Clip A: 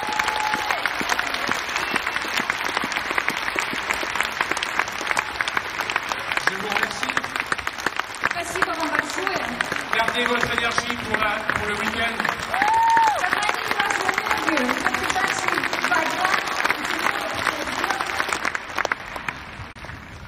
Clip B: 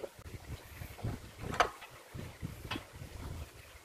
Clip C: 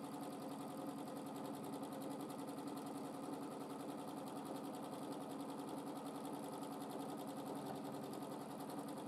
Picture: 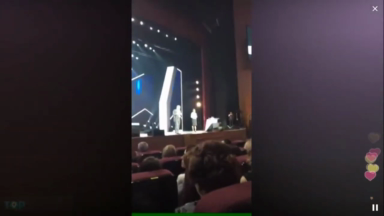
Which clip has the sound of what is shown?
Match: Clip A